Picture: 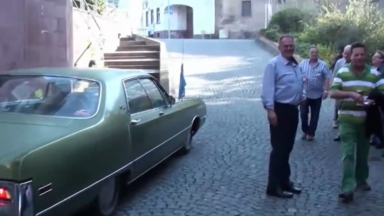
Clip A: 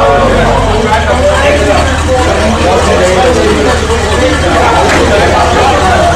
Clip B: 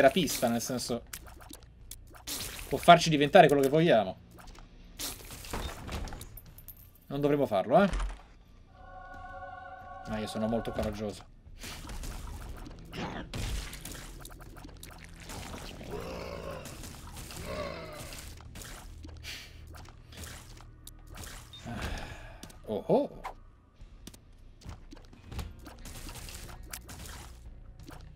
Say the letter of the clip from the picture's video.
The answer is A